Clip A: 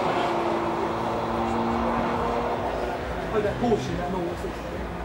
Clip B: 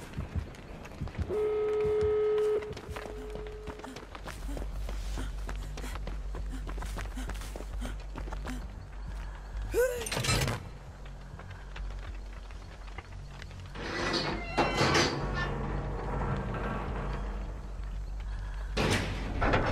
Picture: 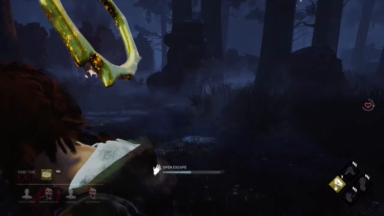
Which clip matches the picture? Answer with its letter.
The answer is B